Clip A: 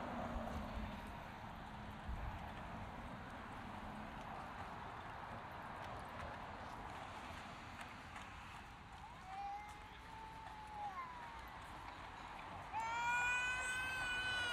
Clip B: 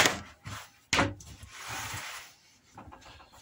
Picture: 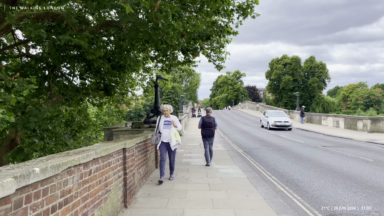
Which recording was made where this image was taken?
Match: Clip A